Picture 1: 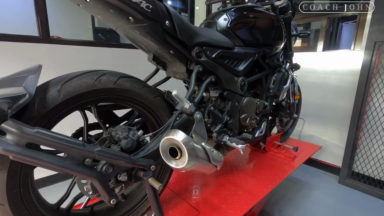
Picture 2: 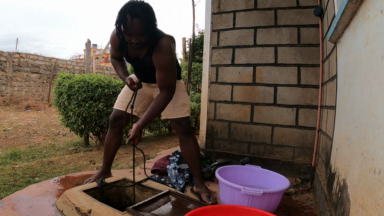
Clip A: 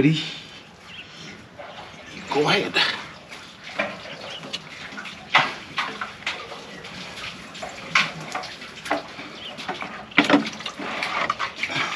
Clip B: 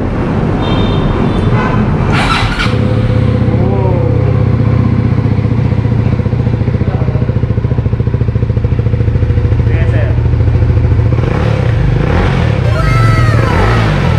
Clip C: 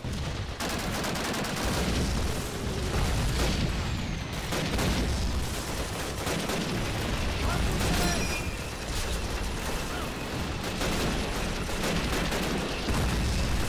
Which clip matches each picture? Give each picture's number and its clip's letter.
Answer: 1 B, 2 A